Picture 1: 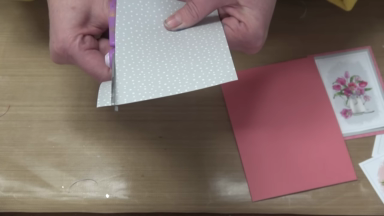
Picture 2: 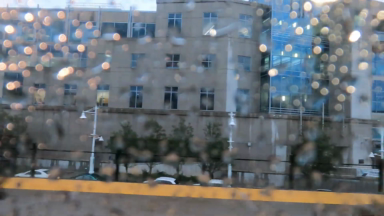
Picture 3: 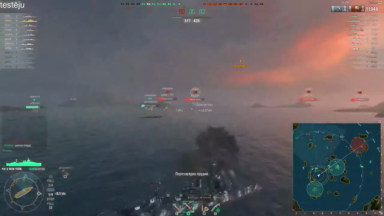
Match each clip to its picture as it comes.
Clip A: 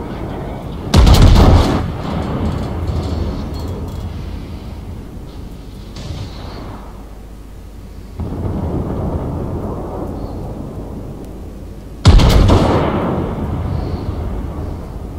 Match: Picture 3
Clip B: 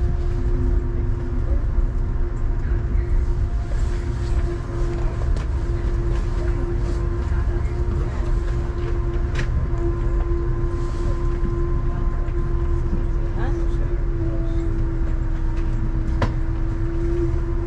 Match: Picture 2